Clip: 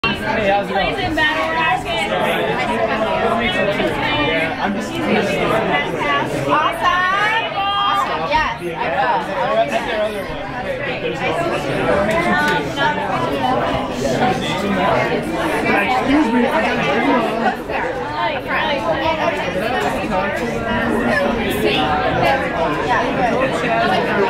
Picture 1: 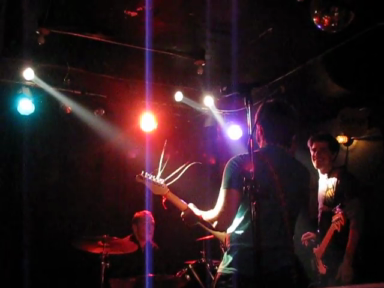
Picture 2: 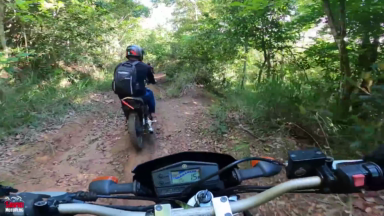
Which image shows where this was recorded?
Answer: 1